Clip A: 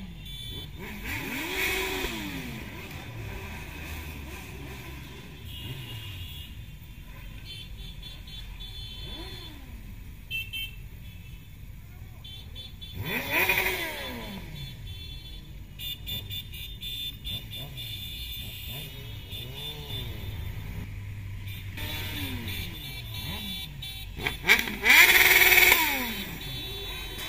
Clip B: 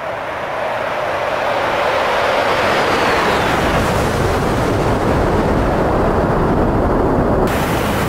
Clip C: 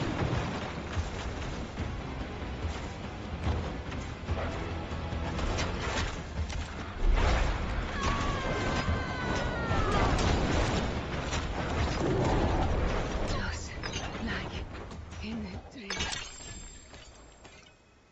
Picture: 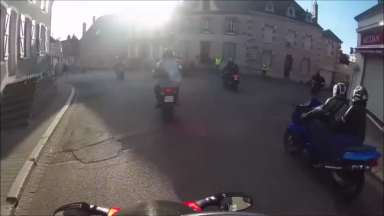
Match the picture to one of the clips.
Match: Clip A